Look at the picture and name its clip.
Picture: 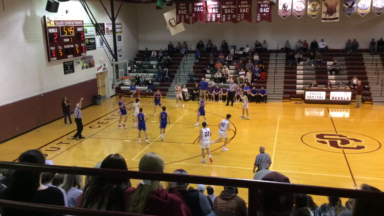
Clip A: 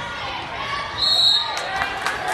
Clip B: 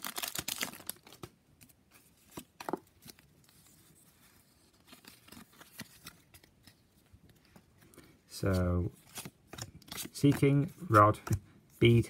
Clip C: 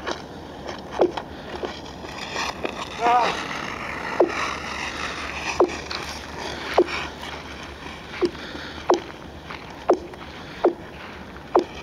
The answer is A